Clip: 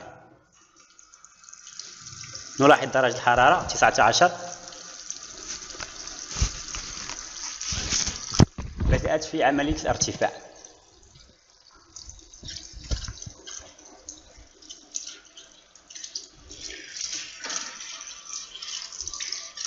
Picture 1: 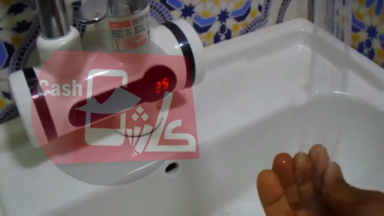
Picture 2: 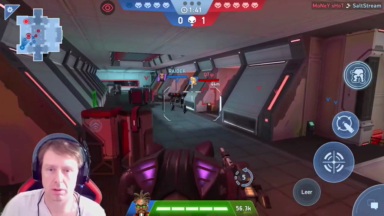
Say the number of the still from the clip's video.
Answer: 1